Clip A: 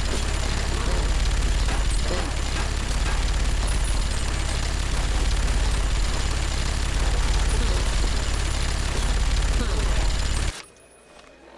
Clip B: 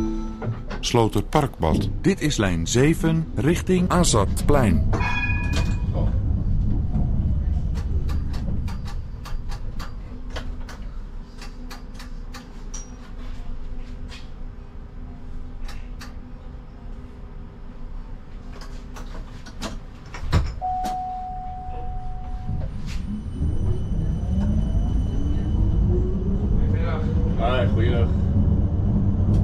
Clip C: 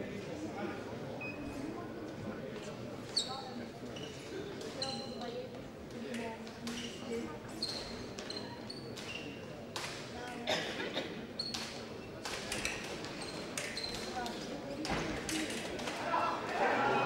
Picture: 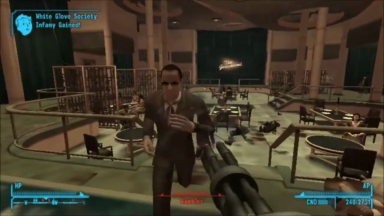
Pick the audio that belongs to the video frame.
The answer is A